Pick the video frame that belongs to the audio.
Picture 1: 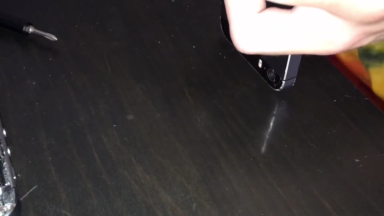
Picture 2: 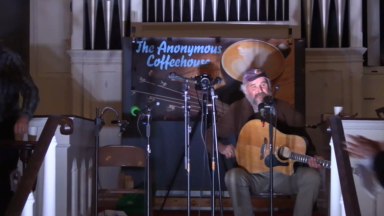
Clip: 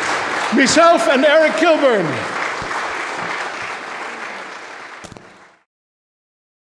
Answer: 2